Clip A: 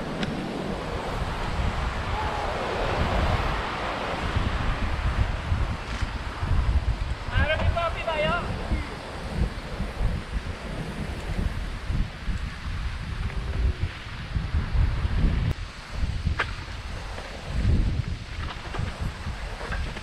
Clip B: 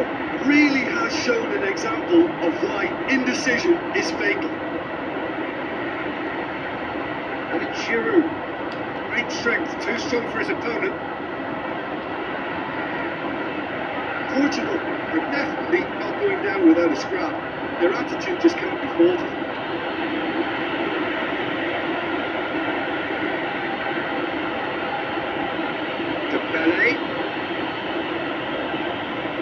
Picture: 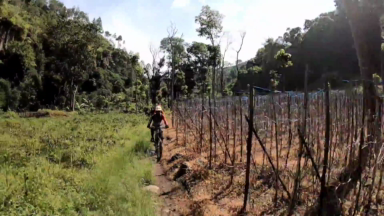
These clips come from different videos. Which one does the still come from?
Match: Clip A